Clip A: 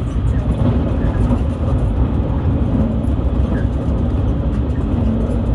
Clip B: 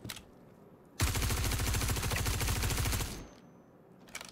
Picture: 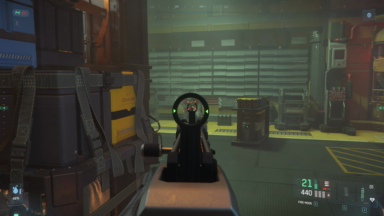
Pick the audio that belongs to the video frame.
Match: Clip B